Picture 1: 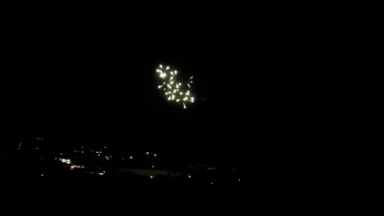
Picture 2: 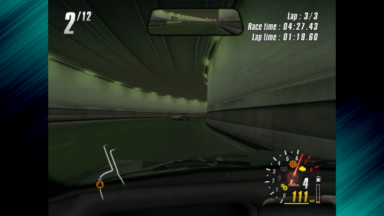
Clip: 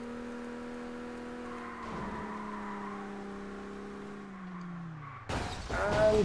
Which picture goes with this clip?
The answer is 2